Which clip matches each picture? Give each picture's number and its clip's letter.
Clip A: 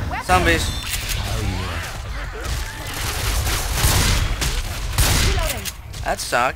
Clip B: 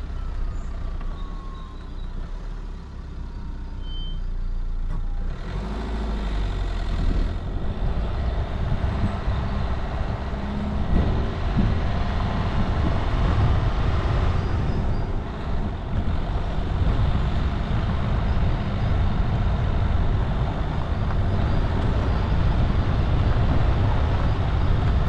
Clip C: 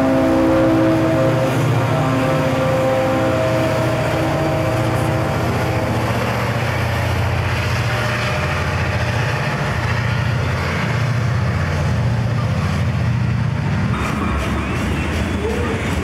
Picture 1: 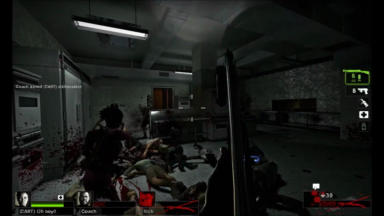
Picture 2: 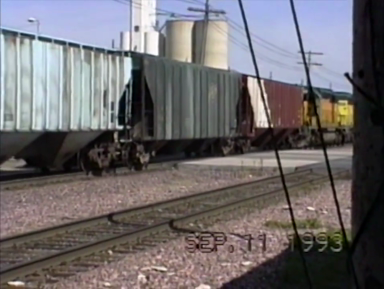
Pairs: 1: A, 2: C